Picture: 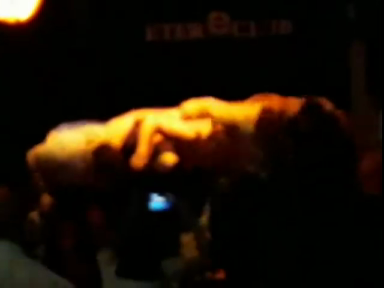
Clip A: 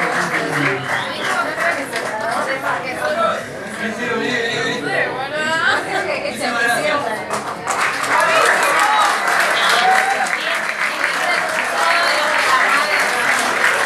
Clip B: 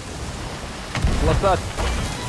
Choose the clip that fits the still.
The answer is A